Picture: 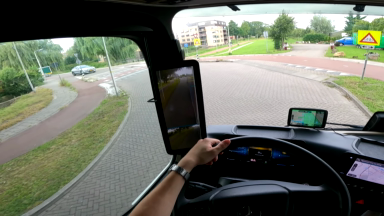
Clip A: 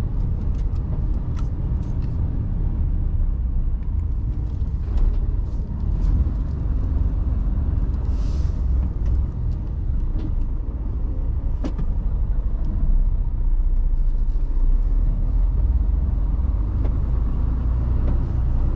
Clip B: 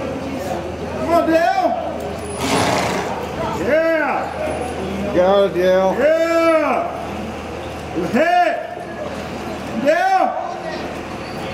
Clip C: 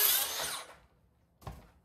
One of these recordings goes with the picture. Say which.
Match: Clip A